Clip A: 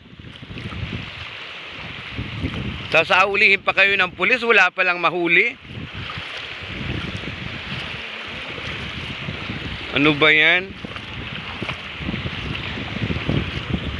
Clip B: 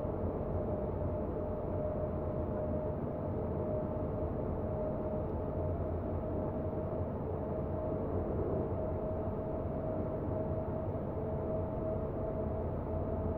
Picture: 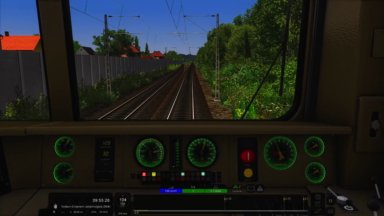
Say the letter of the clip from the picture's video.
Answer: B